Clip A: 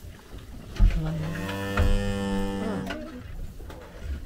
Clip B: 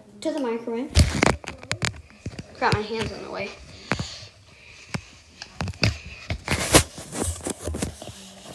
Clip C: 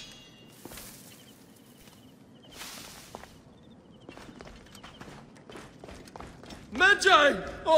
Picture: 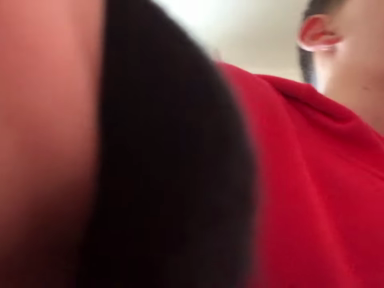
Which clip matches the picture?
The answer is B